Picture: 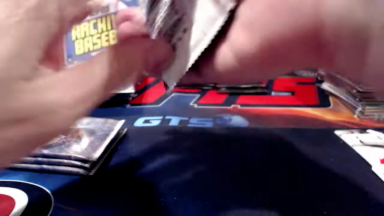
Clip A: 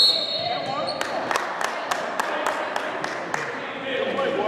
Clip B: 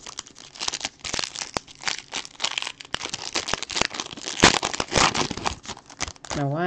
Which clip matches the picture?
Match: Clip B